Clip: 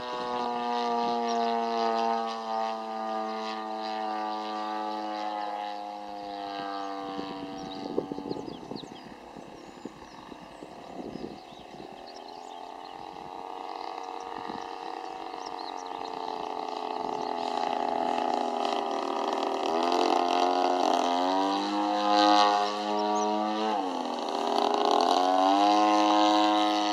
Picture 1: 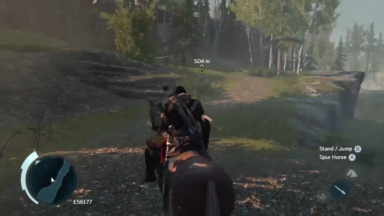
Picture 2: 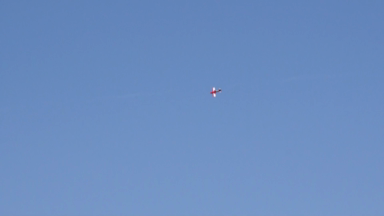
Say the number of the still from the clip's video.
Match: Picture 2